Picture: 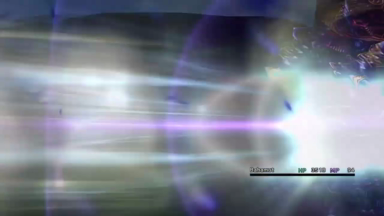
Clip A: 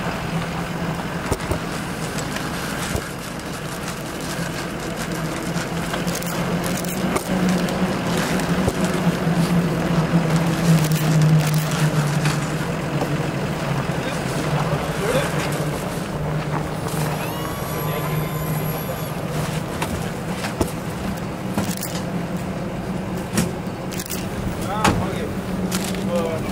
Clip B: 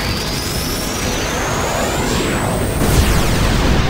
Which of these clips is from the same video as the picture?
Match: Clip B